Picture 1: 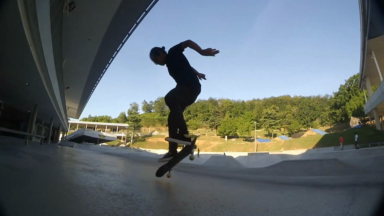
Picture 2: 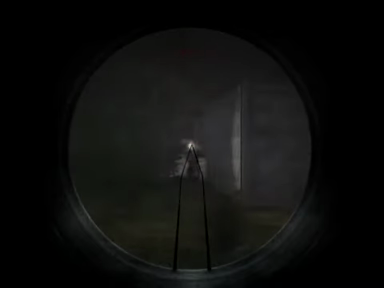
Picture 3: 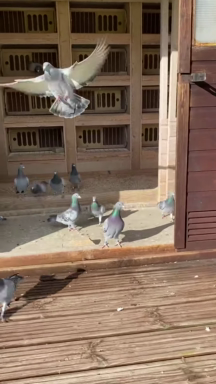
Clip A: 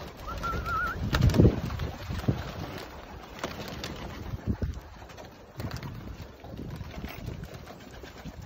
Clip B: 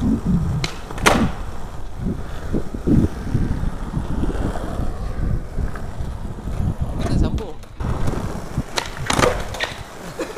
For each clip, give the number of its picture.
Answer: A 3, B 1